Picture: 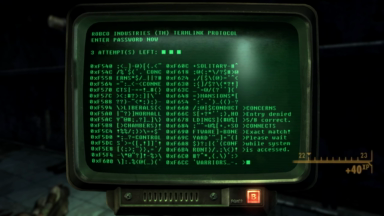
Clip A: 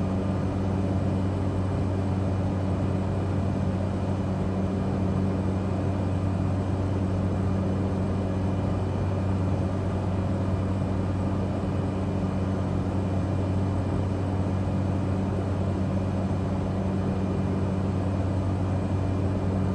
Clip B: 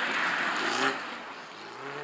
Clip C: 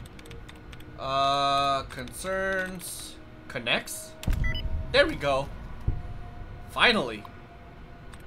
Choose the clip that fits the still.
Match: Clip C